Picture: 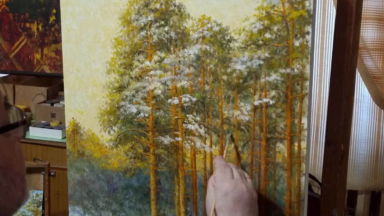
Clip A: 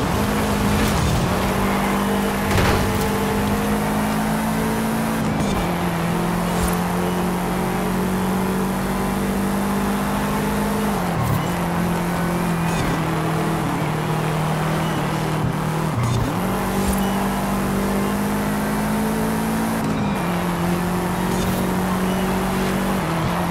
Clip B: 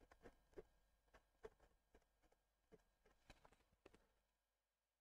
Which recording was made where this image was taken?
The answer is B